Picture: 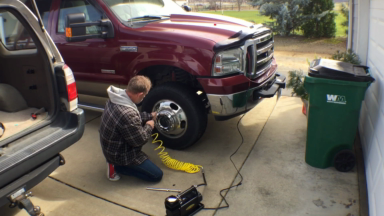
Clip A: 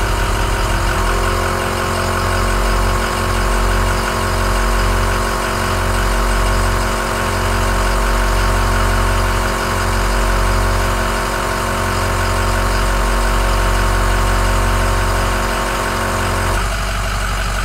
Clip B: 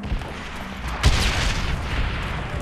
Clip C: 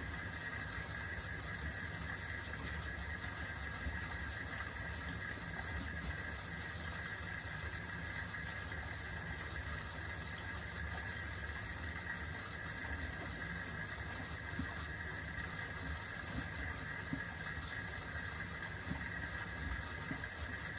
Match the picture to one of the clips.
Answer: A